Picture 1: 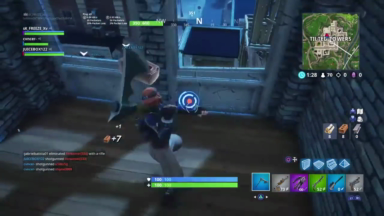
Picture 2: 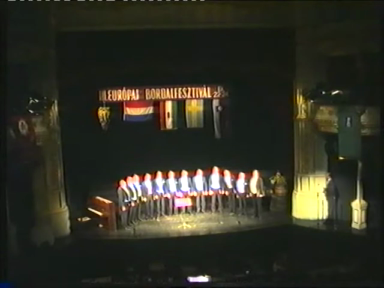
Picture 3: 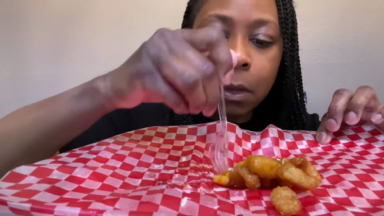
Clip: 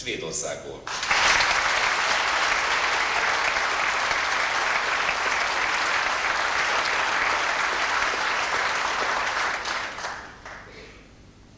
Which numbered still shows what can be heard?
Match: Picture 2